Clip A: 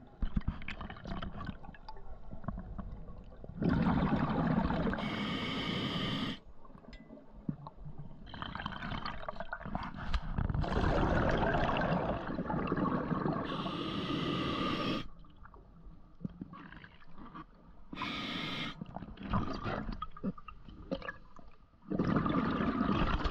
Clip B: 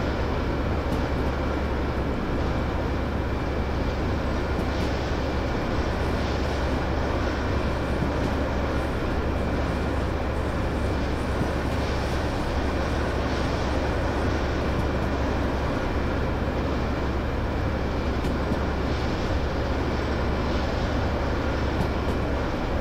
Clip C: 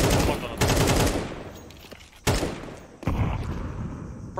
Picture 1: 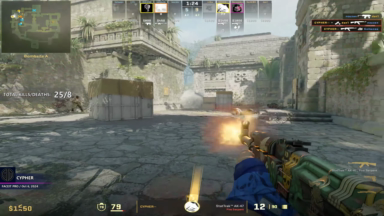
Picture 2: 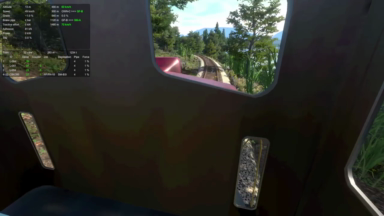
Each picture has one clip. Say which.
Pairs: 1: C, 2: B